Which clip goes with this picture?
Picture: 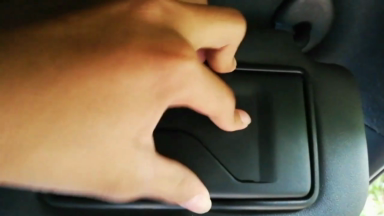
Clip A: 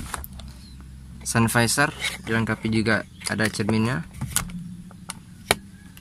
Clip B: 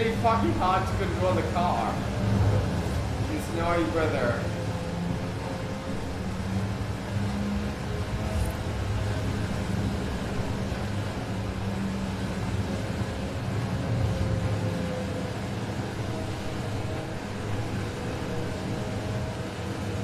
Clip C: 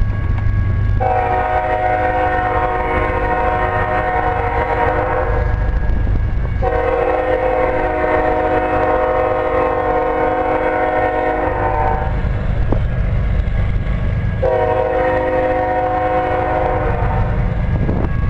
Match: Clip A